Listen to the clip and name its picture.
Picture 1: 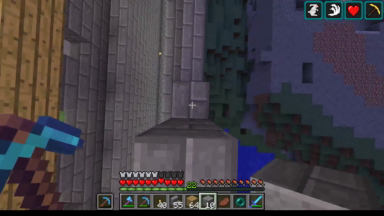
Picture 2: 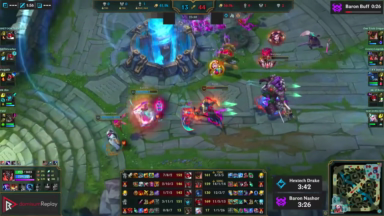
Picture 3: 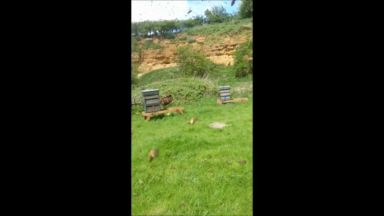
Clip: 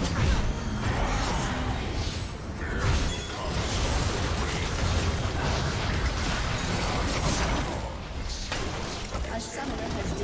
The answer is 2